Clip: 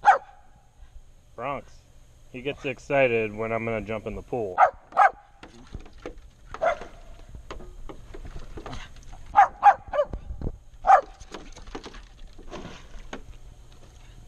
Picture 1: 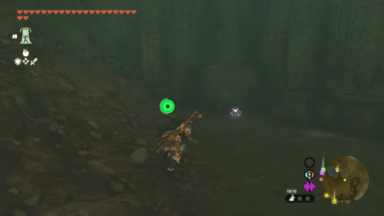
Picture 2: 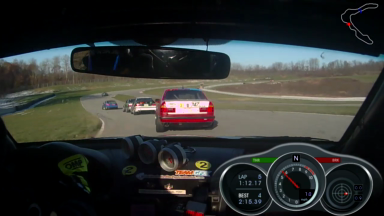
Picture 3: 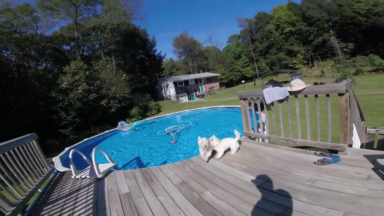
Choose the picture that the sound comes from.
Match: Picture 3